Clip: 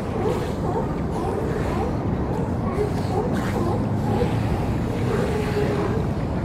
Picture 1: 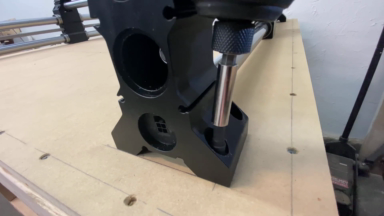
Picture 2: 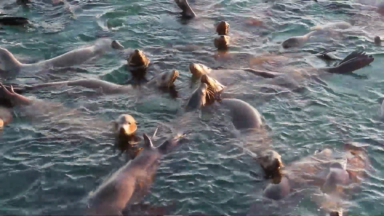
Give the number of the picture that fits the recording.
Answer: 2